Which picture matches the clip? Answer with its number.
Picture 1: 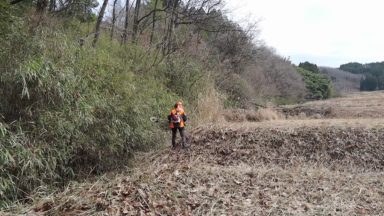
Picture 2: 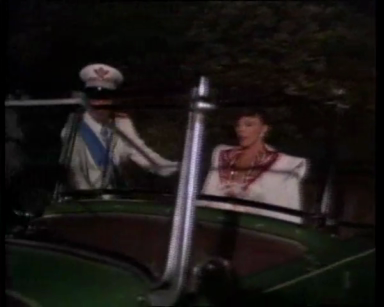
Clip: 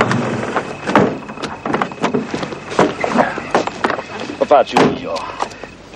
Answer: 2